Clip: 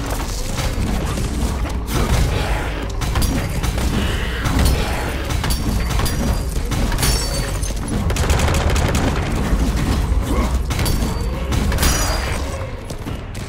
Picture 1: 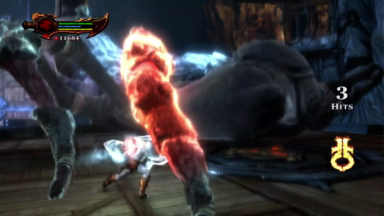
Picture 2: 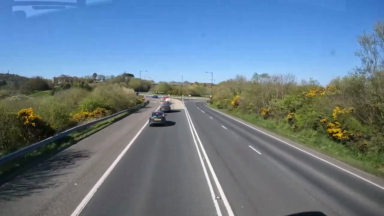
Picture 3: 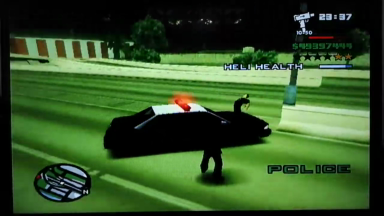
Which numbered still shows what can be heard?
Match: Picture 1